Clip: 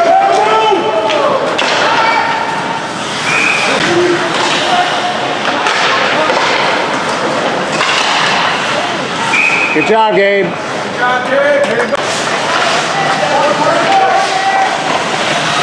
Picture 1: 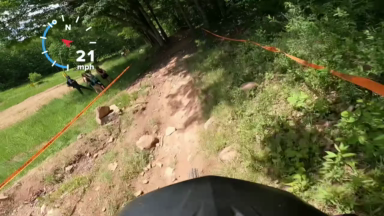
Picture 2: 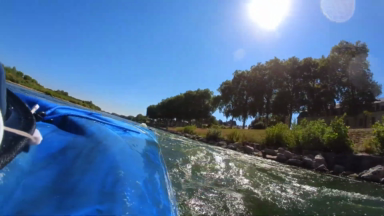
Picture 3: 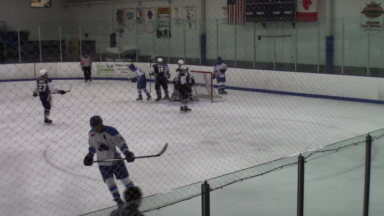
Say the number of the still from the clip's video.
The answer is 3